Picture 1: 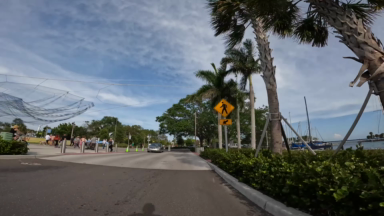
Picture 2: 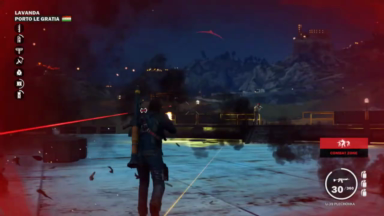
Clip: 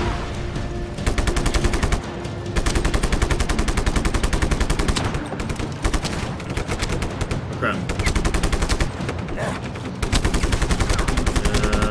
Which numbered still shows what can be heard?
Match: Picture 2